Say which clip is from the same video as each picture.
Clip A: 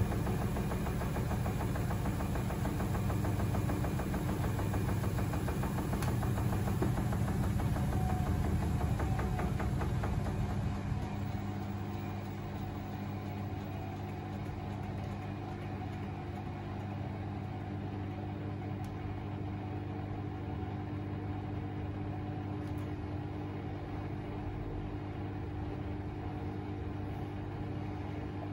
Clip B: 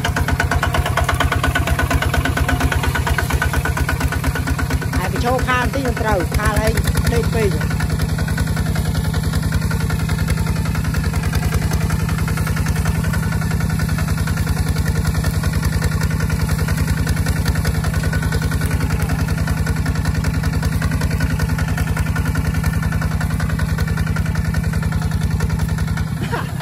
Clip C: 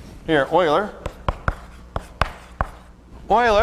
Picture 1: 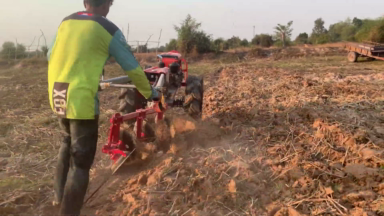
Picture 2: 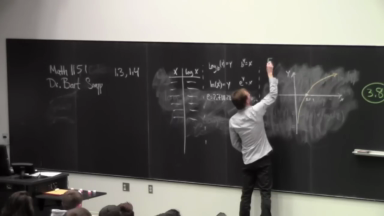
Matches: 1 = B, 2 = C